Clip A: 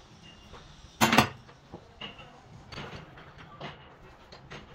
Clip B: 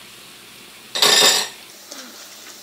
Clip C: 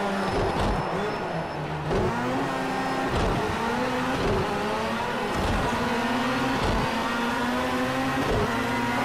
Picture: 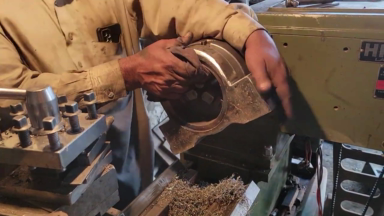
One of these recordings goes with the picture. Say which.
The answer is A